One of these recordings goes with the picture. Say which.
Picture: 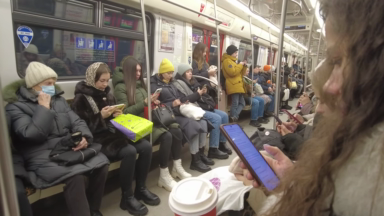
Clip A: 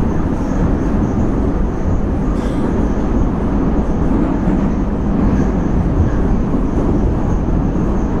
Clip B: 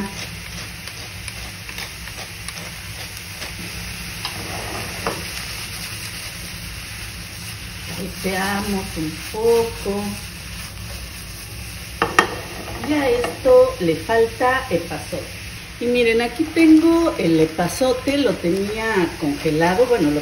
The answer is A